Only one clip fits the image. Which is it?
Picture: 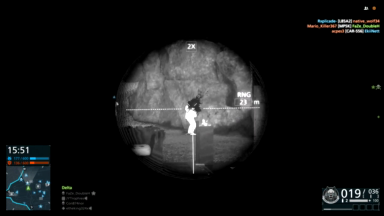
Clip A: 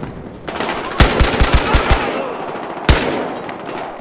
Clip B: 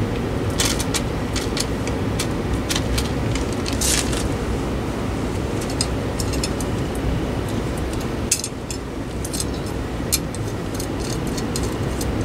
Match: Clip A